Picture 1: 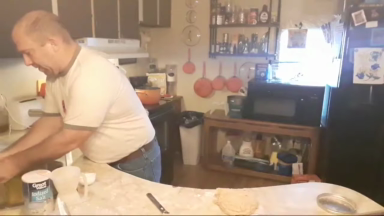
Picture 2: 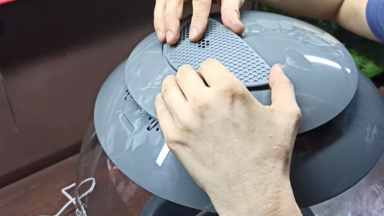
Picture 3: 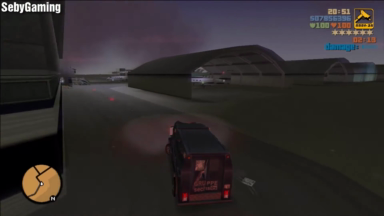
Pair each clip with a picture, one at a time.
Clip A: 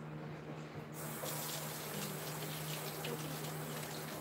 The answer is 1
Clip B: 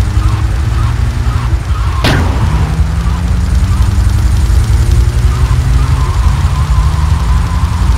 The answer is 3